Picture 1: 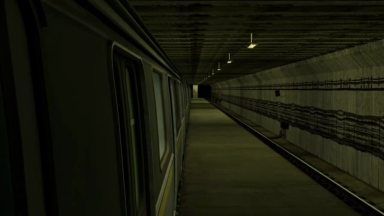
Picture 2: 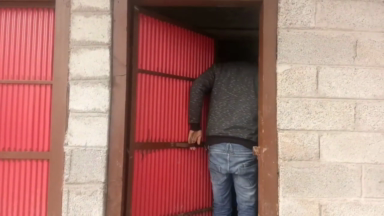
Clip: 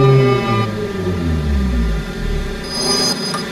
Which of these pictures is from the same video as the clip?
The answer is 1